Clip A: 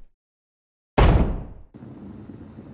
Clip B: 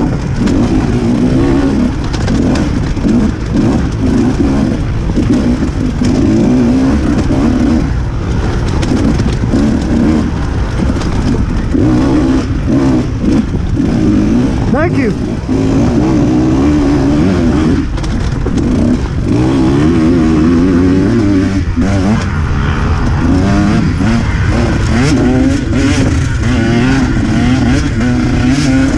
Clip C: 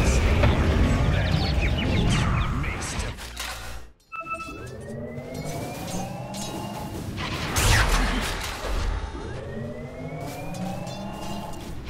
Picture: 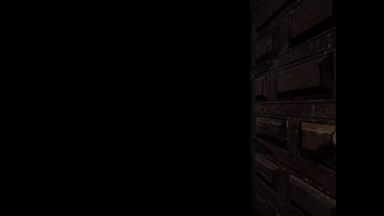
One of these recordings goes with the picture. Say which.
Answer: A